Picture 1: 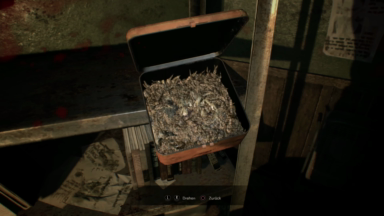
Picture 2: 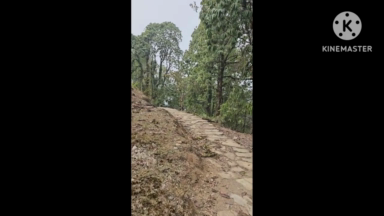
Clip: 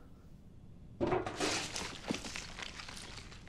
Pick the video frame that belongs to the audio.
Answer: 1